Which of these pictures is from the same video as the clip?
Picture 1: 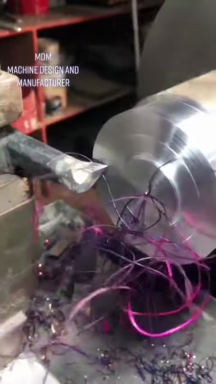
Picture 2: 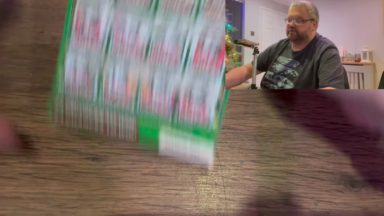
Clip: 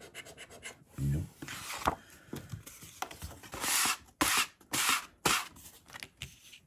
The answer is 2